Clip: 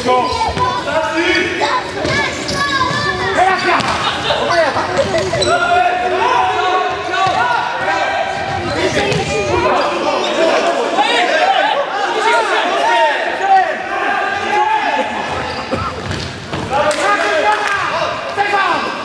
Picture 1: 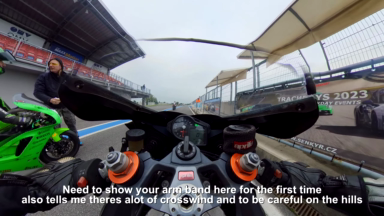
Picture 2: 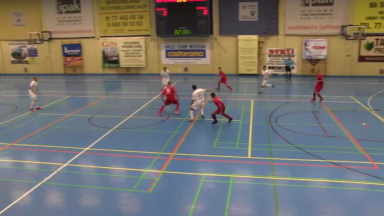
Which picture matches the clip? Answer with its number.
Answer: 2